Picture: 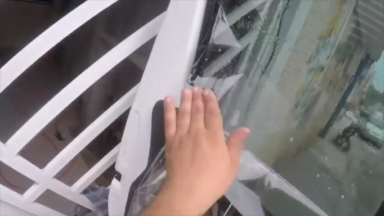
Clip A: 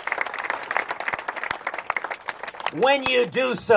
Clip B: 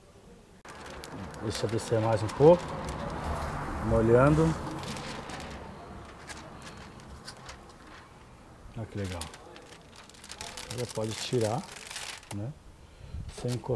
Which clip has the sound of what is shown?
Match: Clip B